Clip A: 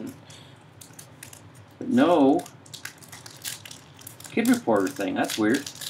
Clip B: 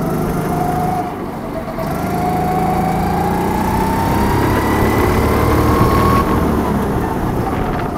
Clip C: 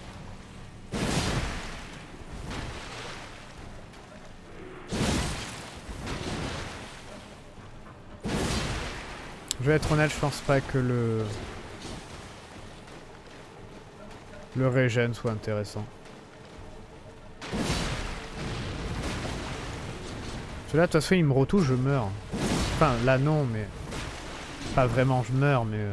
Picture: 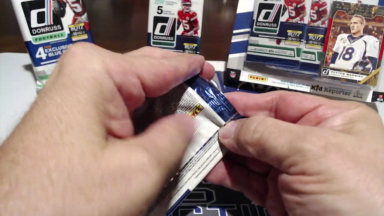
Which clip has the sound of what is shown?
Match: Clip A